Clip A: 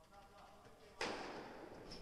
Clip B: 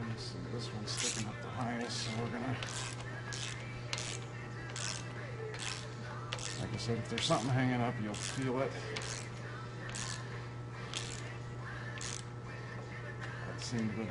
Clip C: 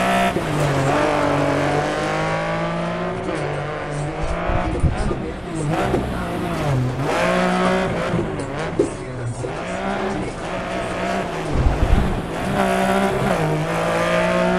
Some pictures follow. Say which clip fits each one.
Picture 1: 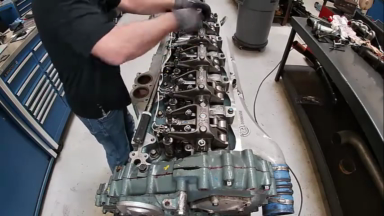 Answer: B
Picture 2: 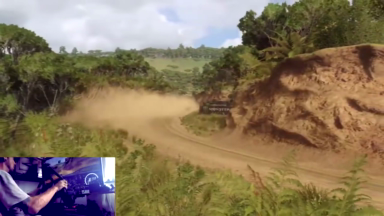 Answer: C